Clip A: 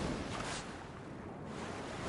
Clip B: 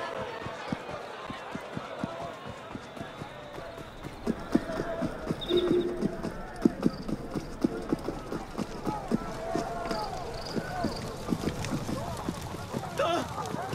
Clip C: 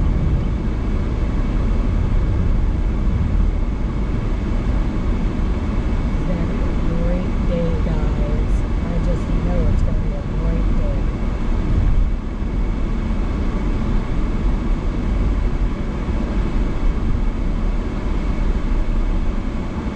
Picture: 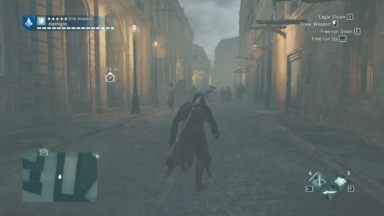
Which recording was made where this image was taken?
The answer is B